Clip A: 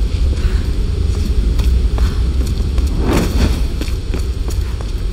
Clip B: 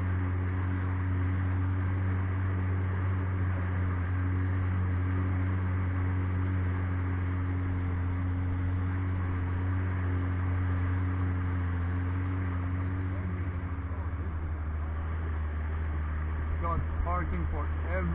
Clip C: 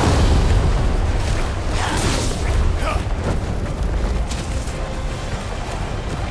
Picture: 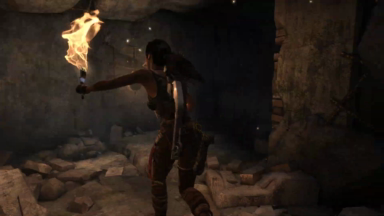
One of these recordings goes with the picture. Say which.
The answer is A